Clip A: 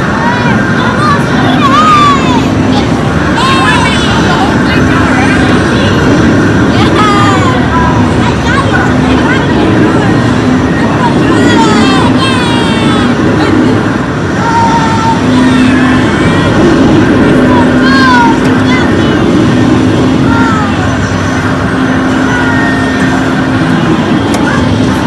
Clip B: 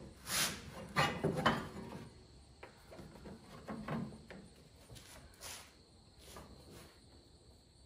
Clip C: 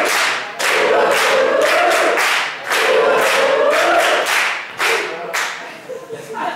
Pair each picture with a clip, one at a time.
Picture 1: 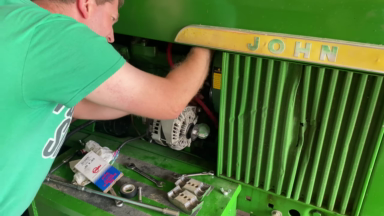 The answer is B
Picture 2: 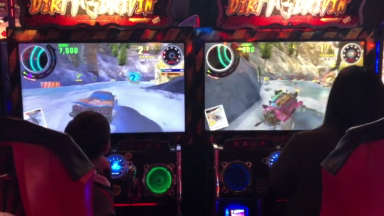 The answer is A